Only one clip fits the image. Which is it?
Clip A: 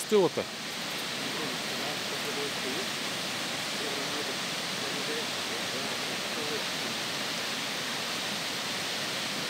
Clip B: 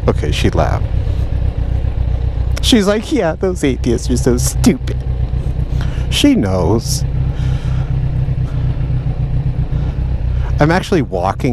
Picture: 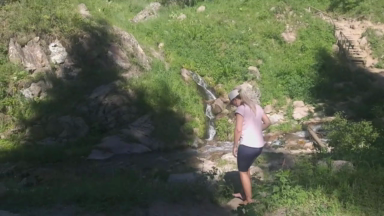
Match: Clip A